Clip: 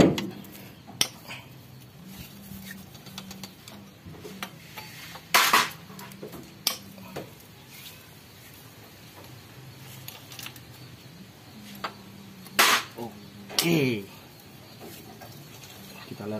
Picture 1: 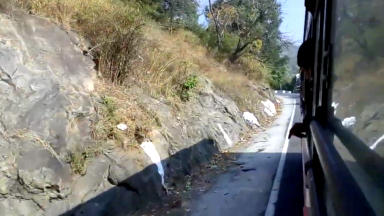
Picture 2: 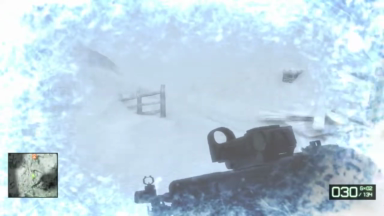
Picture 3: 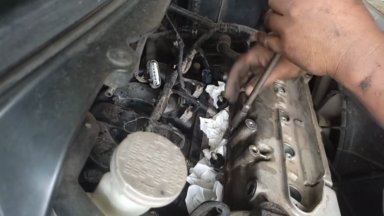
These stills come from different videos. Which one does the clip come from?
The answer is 3